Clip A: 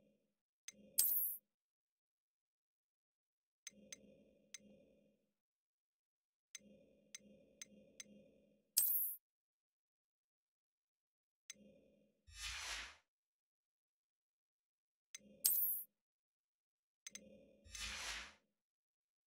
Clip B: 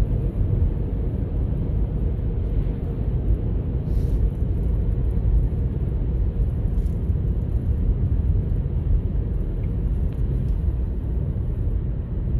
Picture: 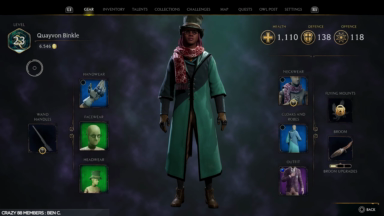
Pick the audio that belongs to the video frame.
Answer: A